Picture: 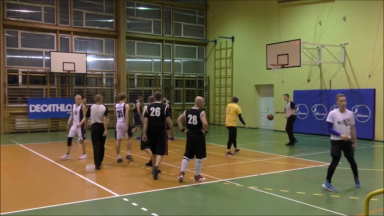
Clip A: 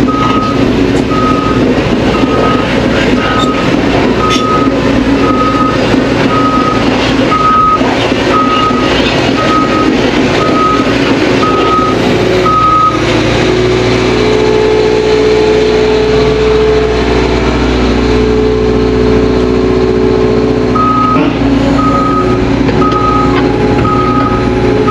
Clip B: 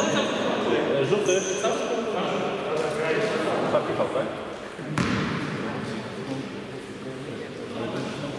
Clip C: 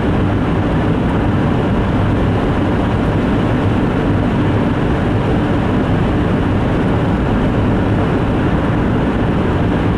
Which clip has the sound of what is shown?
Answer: B